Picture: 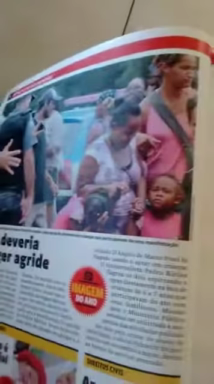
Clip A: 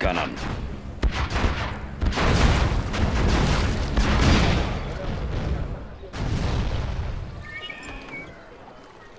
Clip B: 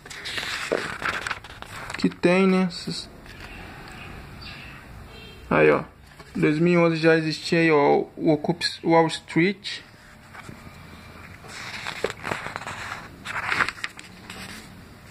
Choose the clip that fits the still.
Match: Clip B